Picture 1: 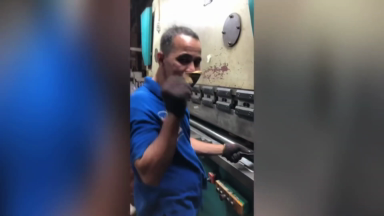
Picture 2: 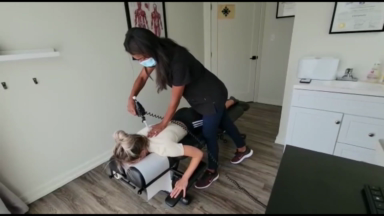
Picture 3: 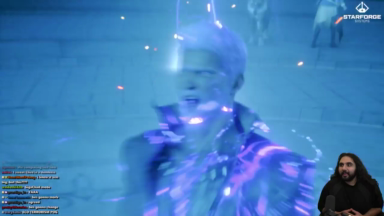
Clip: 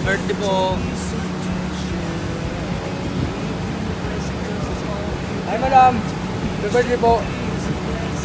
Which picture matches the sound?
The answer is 1